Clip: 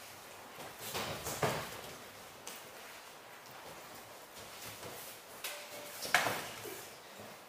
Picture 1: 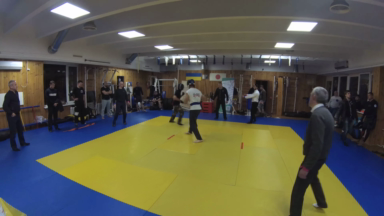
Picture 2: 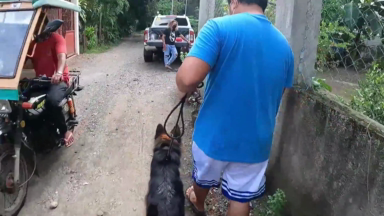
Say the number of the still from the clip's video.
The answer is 1